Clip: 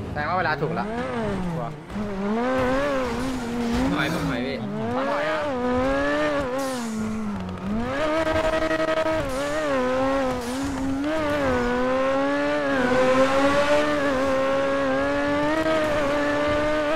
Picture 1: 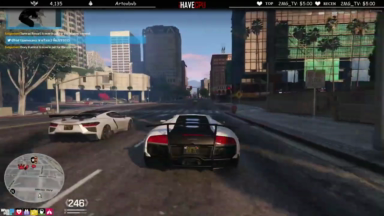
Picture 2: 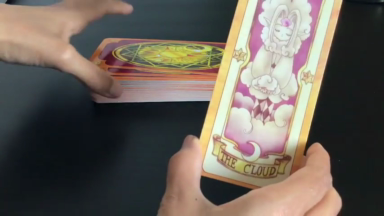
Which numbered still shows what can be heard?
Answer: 1